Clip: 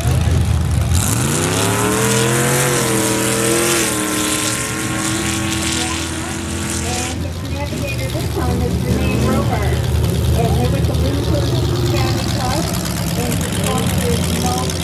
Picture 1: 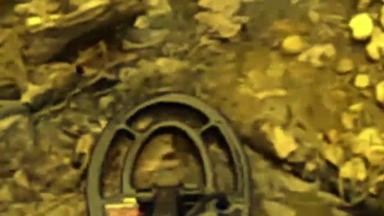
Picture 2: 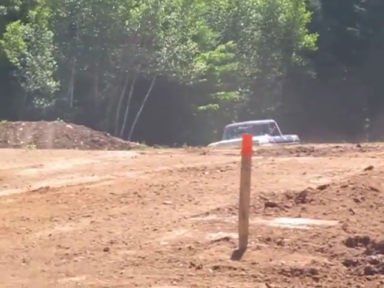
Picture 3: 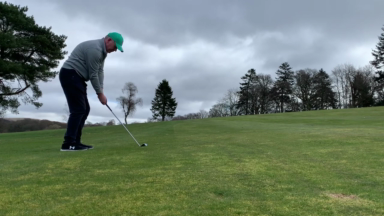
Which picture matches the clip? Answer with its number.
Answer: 2